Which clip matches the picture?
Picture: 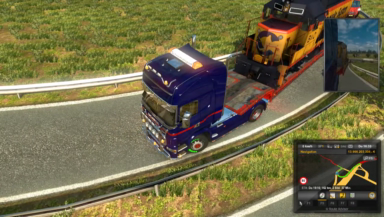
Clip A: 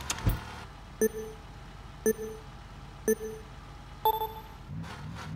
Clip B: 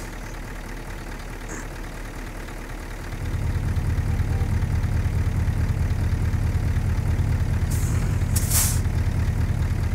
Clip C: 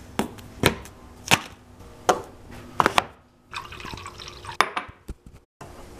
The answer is B